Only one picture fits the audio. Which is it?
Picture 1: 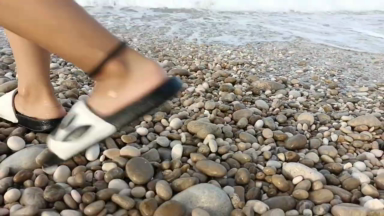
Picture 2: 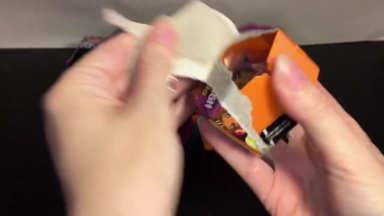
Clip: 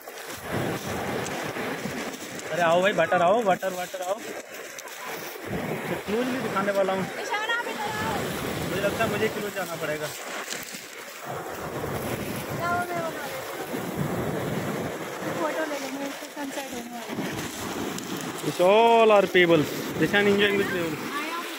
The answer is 1